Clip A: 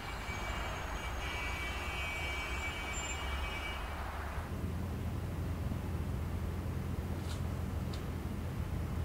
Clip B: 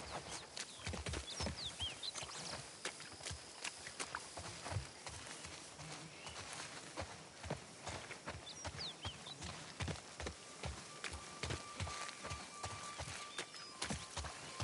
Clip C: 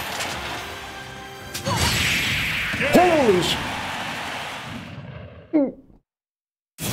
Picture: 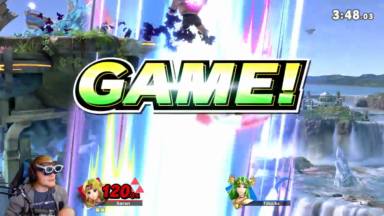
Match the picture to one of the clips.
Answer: C